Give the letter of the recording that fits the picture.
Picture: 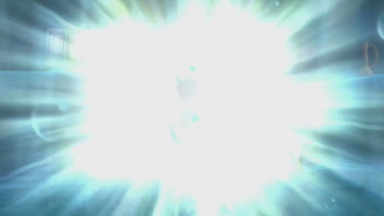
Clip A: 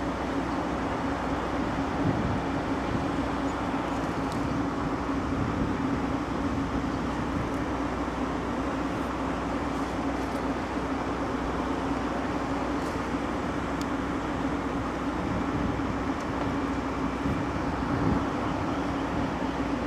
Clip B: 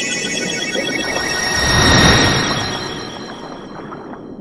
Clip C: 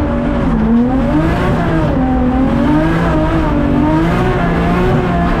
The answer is B